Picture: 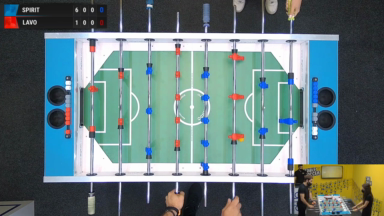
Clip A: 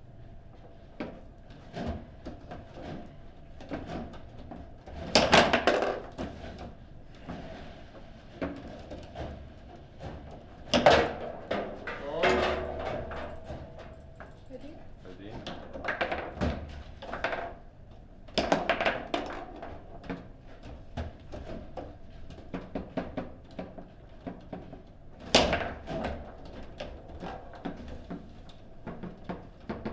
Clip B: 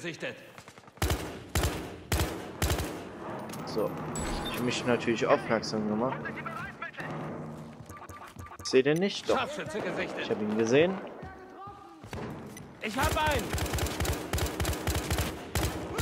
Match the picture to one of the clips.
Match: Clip A